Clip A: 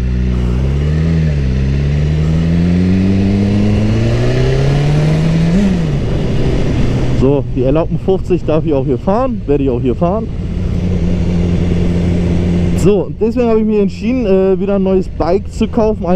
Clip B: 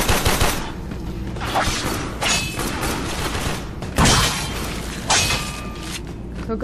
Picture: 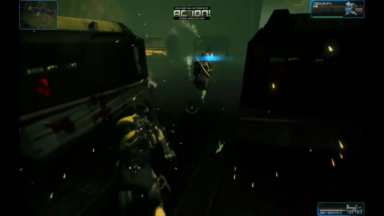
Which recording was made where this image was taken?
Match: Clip B